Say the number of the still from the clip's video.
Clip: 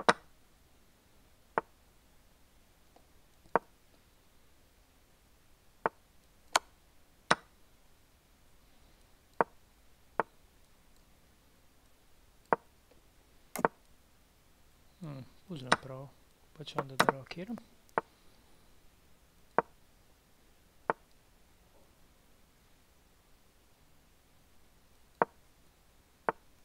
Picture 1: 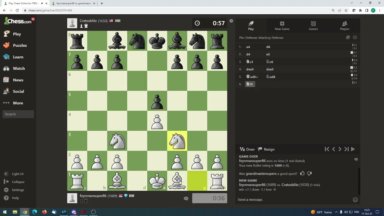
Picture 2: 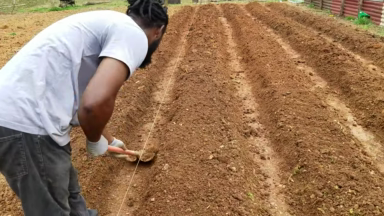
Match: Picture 1